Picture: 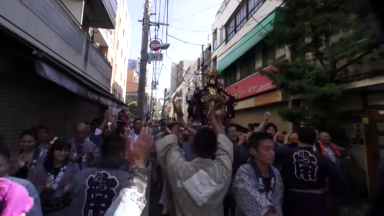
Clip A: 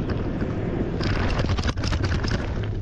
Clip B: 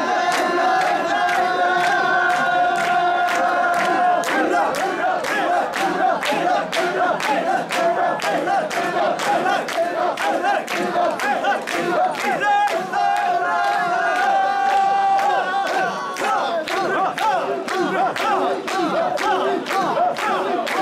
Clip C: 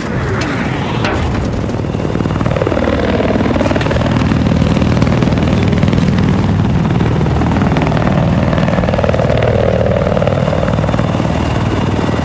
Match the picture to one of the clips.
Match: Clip B